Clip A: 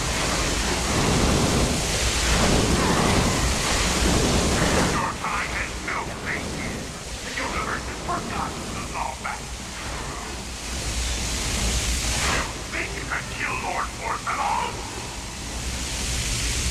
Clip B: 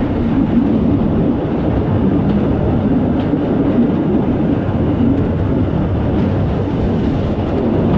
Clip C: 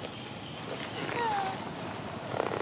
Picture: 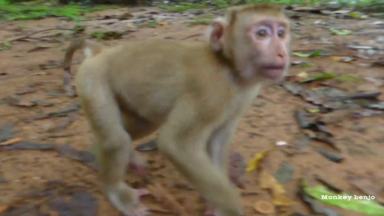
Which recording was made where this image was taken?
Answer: C